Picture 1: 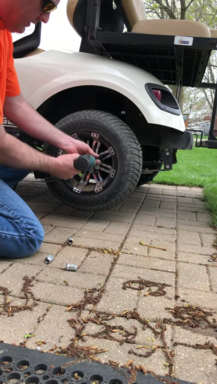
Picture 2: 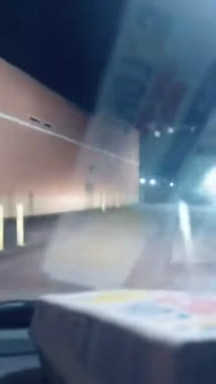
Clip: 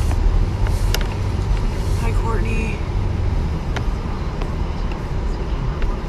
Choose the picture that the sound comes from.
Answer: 2